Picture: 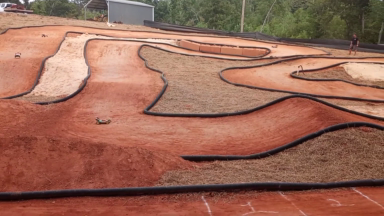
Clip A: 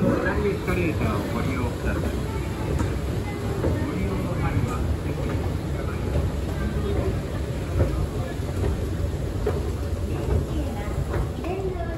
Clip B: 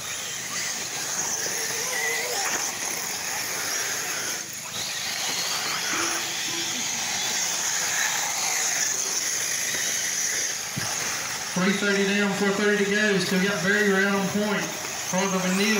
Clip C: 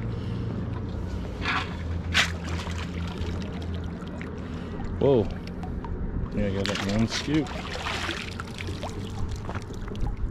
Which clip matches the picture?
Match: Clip B